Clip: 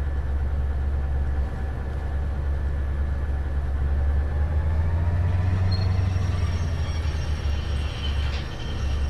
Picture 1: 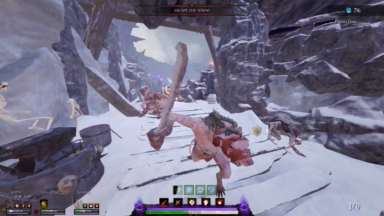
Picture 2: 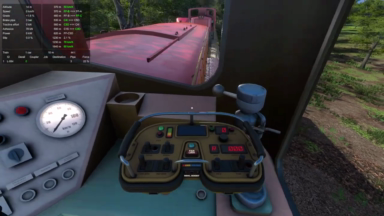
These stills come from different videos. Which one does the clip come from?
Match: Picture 2